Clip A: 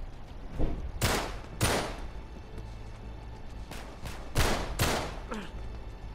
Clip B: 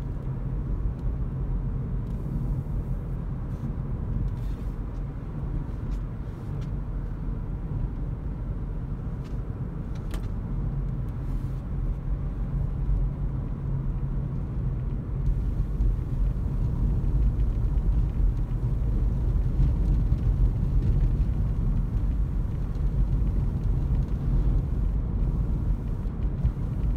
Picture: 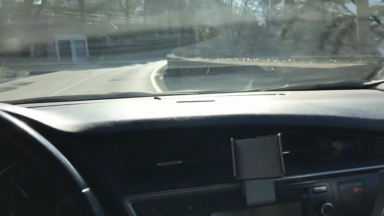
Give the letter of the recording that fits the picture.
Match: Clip B